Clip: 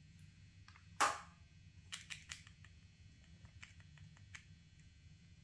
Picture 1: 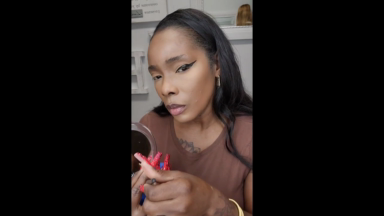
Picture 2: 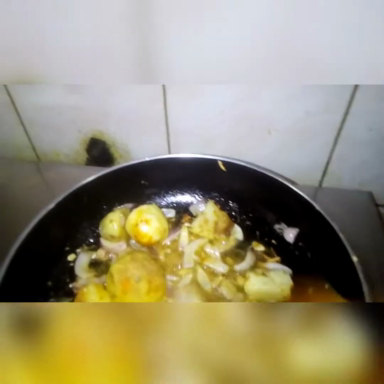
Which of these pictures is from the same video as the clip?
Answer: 1